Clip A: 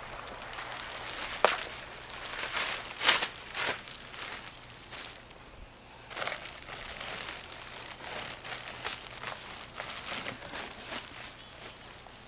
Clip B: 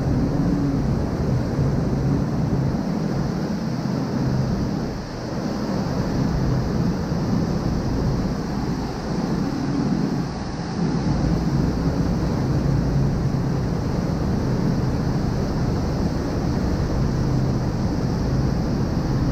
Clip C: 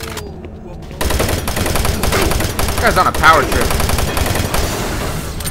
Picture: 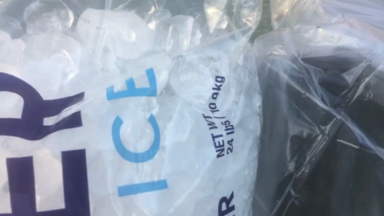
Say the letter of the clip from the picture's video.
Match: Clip A